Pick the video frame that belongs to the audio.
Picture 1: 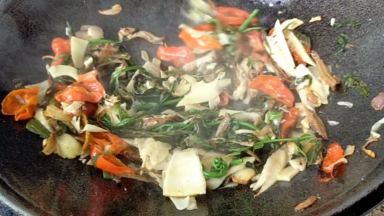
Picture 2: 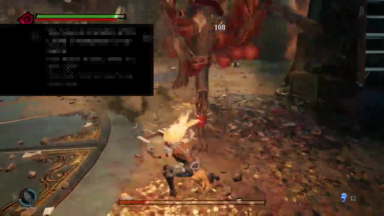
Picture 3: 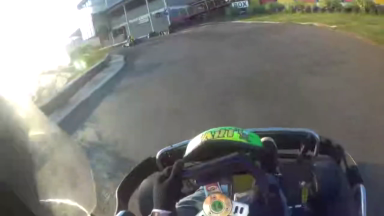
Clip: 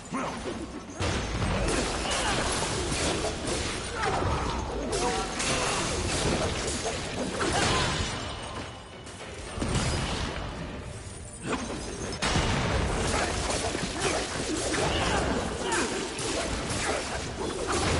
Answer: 2